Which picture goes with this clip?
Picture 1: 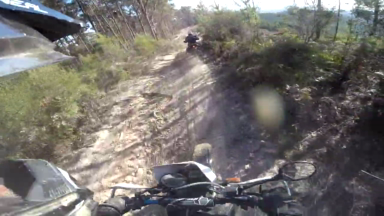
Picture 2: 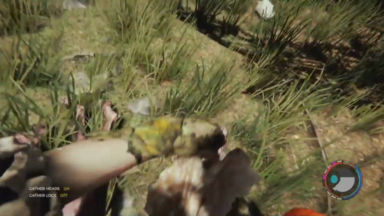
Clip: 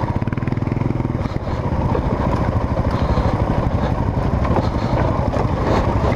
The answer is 1